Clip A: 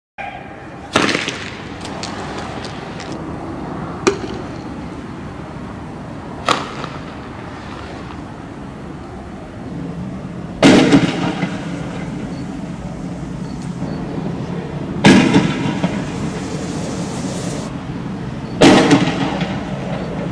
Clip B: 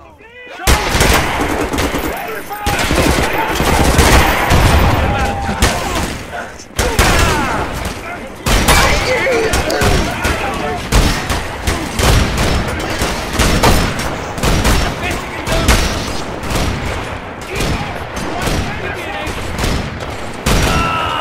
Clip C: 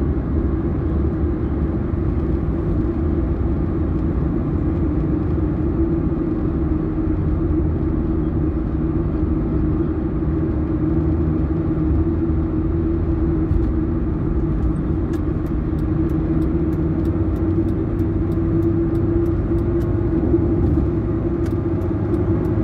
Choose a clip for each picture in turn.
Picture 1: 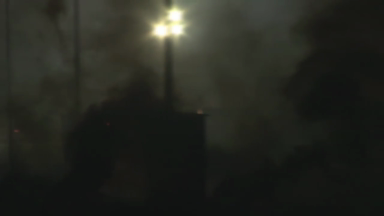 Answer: A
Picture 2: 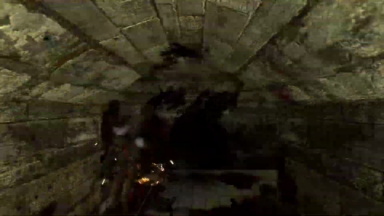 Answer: B